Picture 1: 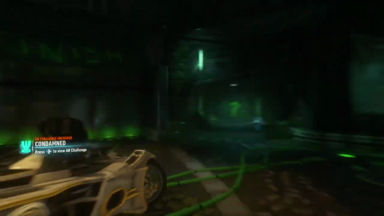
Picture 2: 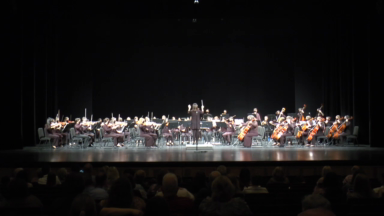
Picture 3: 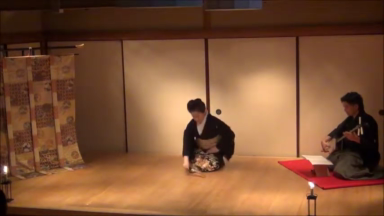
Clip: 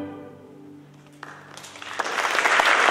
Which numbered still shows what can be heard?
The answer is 2